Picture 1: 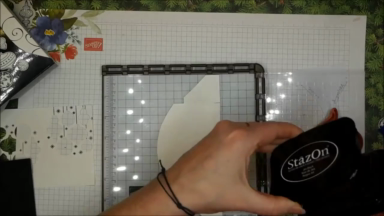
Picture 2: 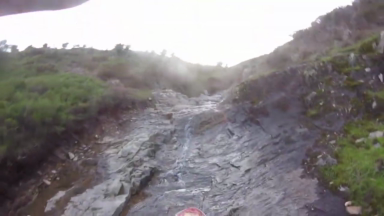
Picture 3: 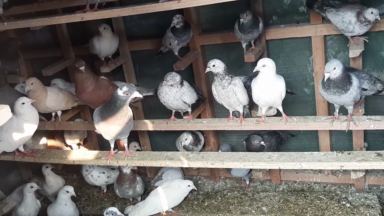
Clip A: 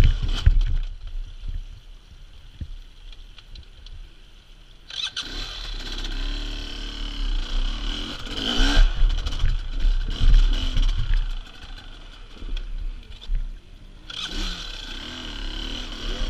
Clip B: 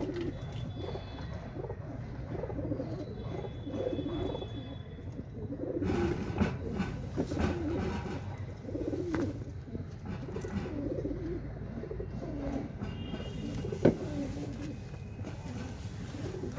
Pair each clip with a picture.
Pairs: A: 2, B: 3